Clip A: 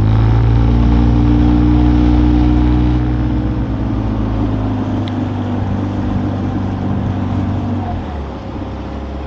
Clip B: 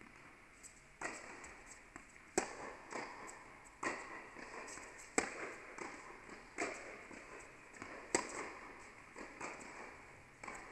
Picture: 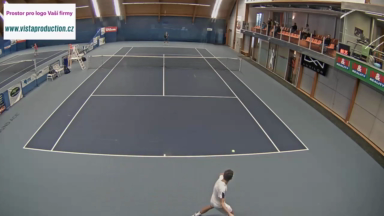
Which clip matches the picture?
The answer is B